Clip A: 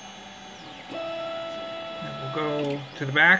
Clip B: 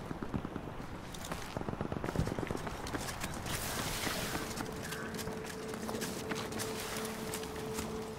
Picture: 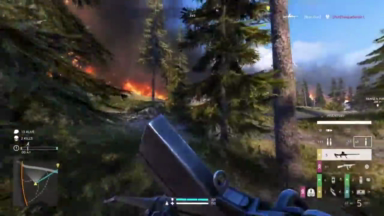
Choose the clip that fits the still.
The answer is B